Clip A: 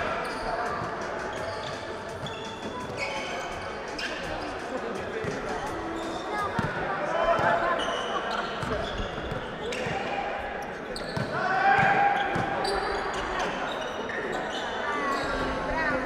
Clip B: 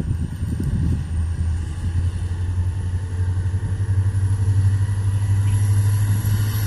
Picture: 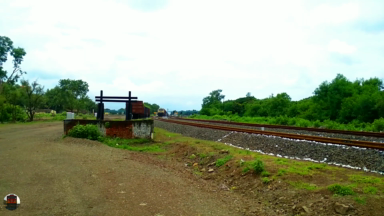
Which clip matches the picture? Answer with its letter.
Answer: B